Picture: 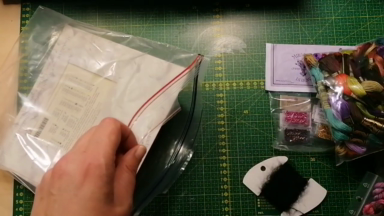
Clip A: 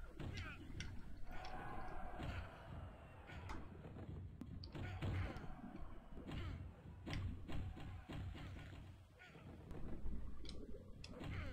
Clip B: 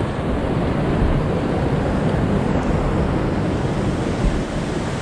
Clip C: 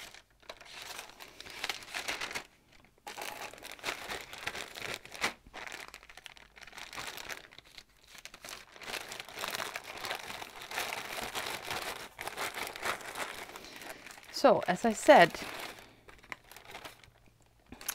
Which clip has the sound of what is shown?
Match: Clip C